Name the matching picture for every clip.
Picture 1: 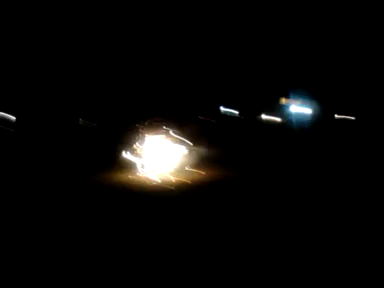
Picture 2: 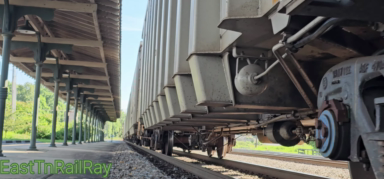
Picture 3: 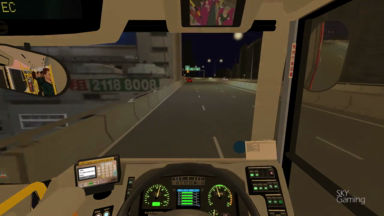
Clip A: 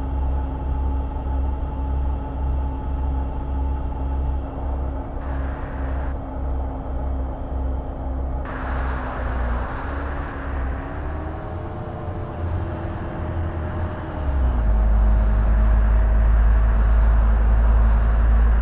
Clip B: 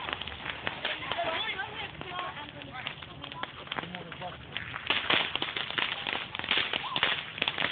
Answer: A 3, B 1